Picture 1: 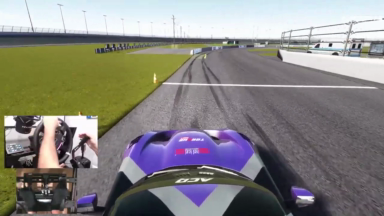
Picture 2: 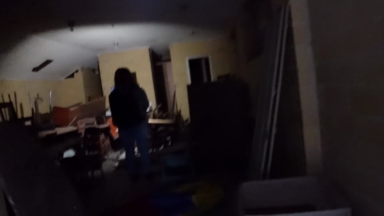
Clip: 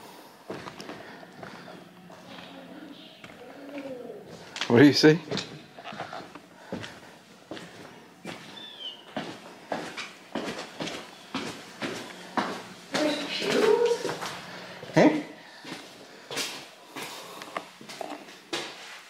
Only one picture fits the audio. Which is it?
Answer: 2